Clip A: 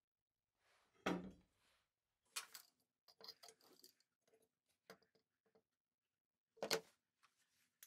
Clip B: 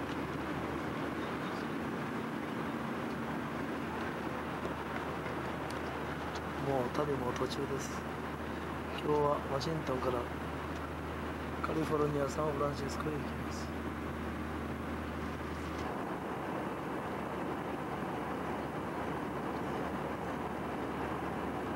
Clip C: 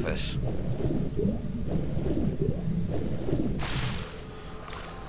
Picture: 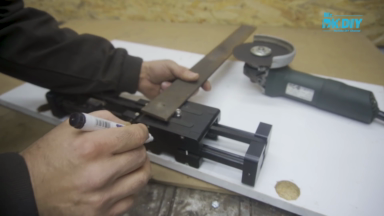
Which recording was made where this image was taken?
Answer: A